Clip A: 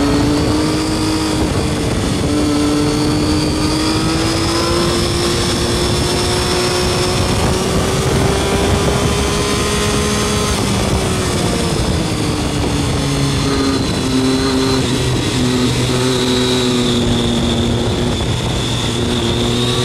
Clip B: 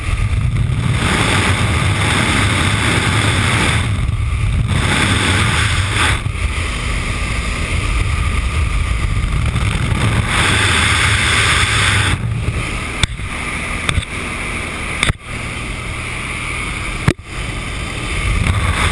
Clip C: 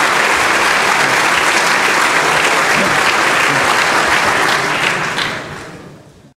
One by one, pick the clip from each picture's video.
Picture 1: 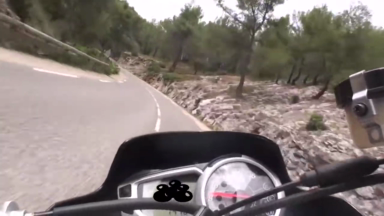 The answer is A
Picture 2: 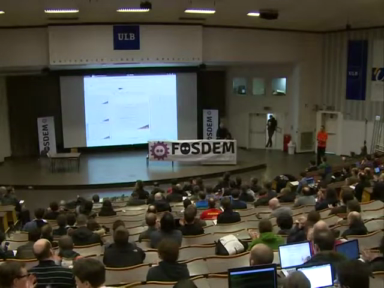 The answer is C